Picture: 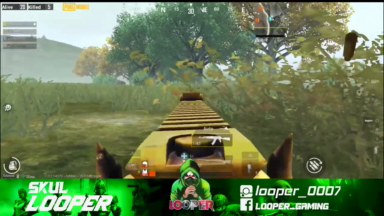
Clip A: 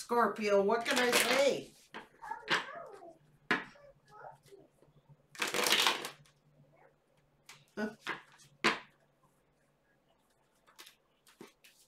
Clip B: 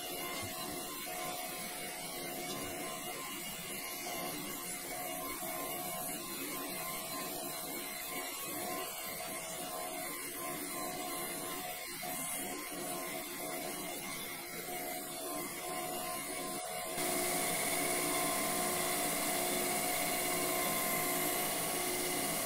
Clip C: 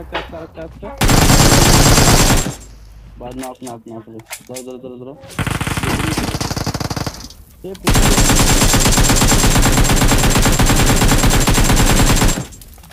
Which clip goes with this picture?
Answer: C